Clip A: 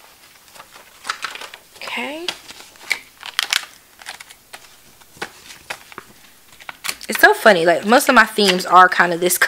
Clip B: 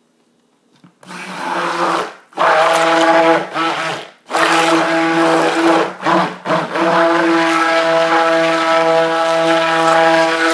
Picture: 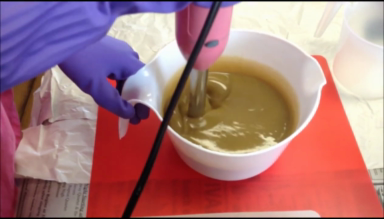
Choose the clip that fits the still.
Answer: B